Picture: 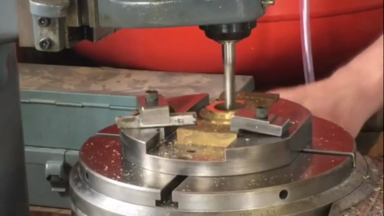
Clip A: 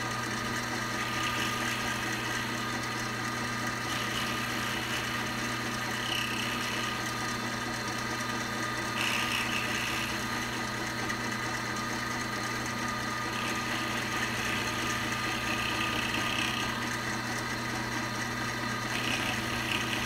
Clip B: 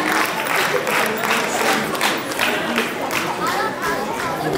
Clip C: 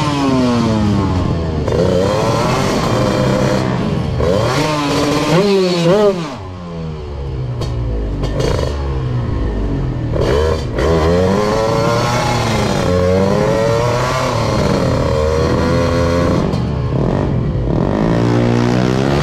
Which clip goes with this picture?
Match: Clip A